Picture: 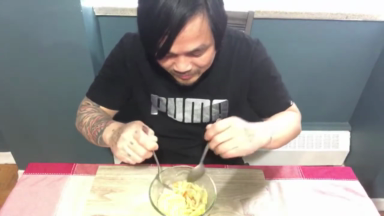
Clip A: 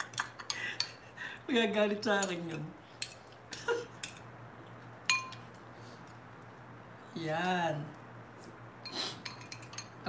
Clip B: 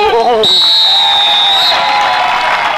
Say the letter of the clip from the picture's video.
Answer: A